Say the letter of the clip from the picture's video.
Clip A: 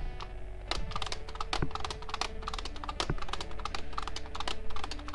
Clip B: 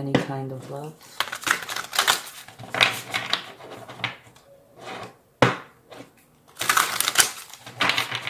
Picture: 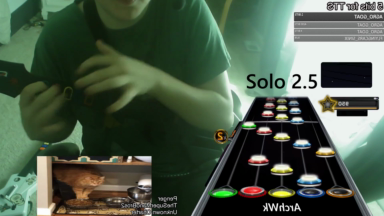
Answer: A